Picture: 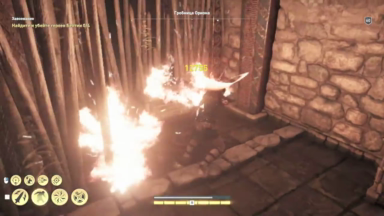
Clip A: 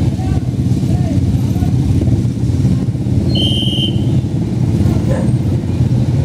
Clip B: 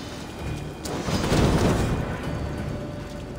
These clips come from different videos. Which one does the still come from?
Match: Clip B